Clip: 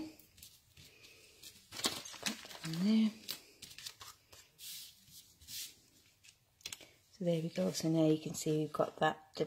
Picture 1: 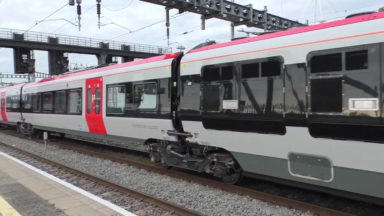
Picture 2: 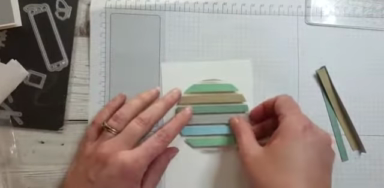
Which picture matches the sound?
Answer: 2